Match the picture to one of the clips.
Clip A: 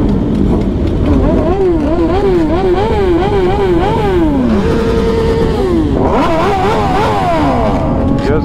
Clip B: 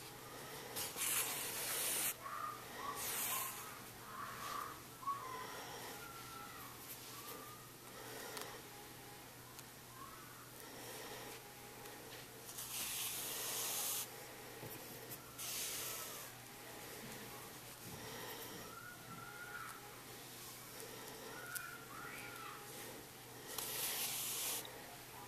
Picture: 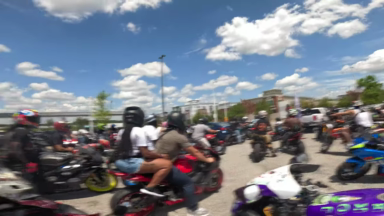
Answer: A